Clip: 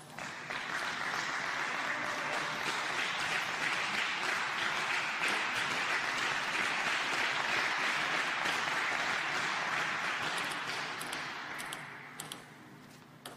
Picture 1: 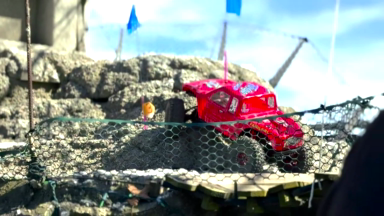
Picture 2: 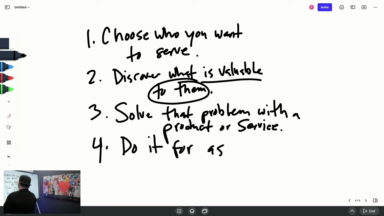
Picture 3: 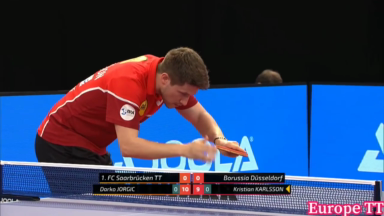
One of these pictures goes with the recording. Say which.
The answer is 3